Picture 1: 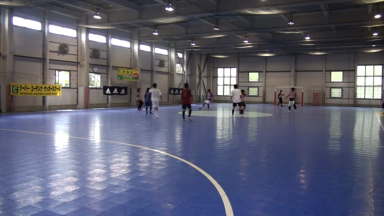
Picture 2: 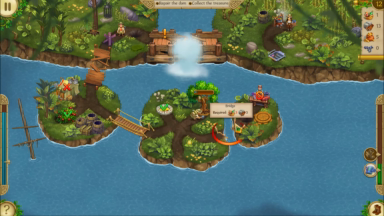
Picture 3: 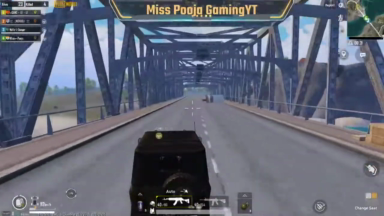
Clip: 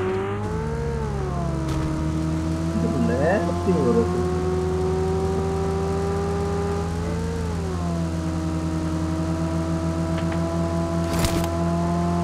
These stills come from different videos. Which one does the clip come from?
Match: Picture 3